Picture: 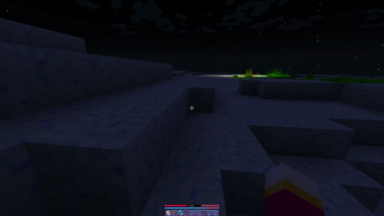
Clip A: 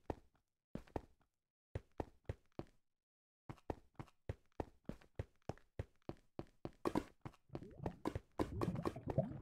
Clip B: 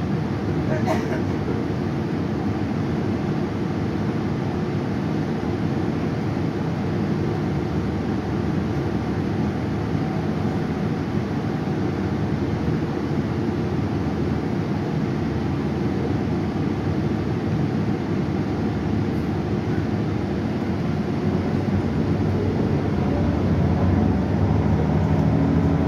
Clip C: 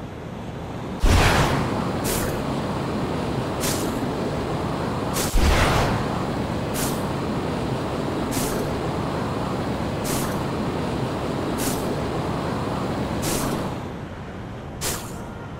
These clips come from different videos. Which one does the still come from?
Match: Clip A